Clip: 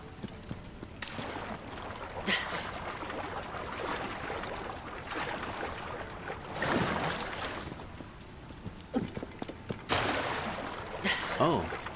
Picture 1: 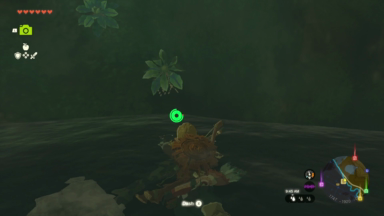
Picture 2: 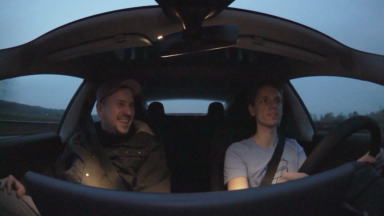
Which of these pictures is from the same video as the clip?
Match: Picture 1